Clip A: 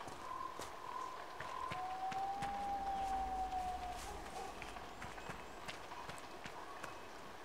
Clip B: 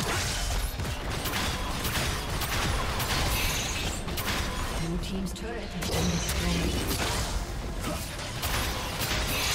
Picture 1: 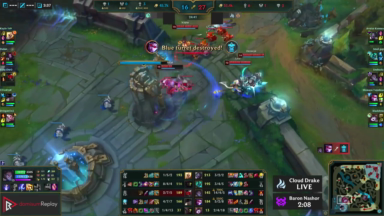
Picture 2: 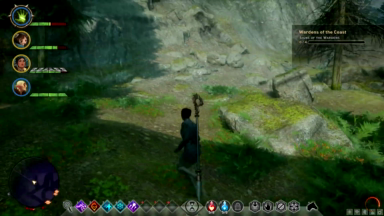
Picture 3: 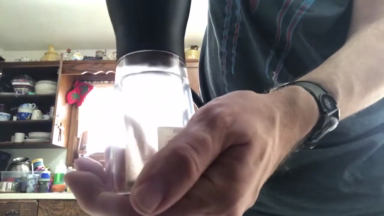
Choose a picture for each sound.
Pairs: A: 2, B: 1